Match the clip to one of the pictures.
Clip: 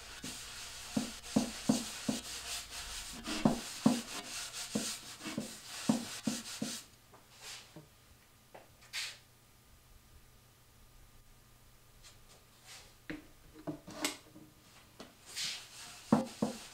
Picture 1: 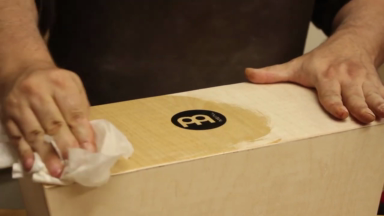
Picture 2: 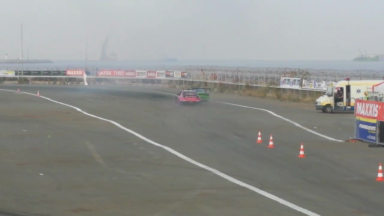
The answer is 1